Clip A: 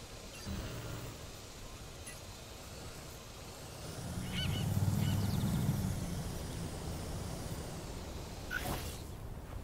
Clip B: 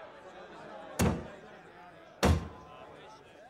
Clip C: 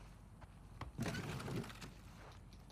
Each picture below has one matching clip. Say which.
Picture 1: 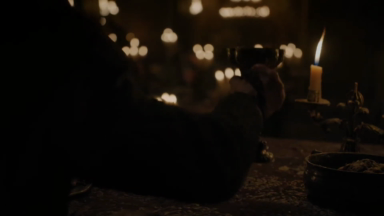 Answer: B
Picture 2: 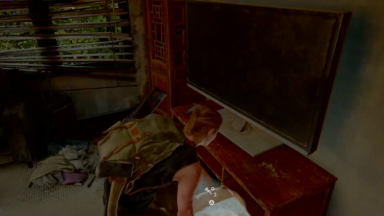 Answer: C